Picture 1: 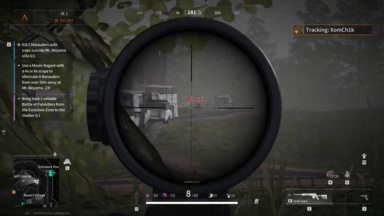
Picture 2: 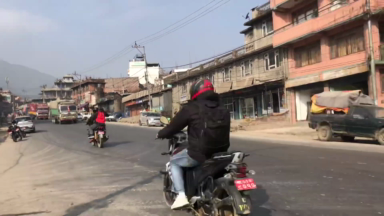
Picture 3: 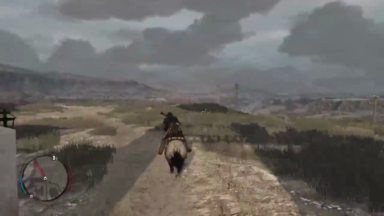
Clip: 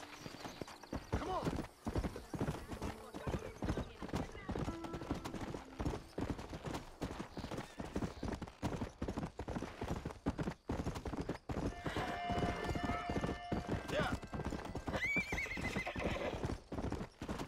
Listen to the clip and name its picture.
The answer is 3